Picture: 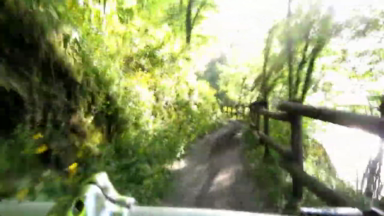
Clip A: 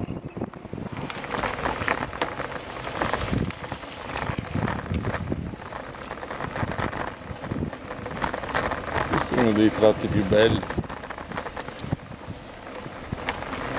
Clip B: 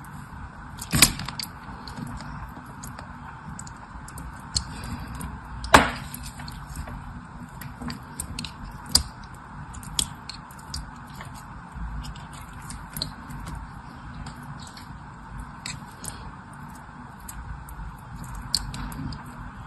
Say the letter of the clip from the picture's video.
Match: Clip A